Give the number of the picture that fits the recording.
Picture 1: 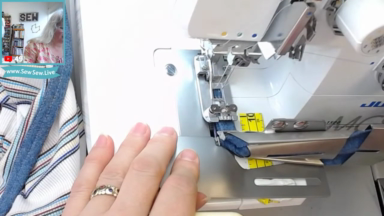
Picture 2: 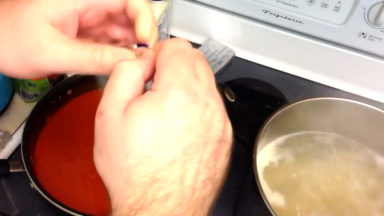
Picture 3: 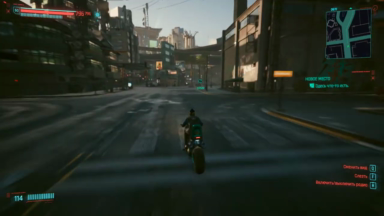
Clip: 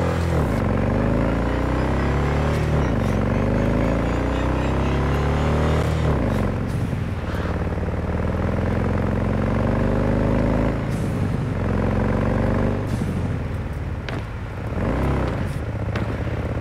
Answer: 3